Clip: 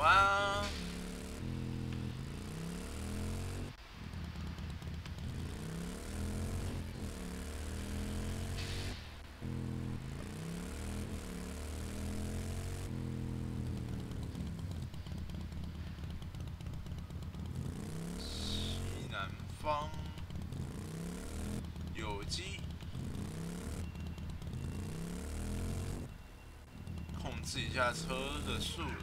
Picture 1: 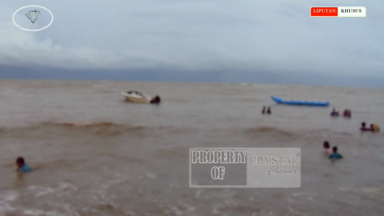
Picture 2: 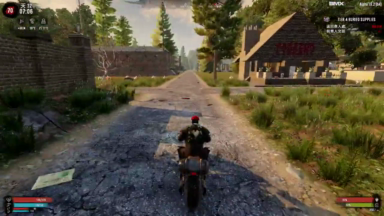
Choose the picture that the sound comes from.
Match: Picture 2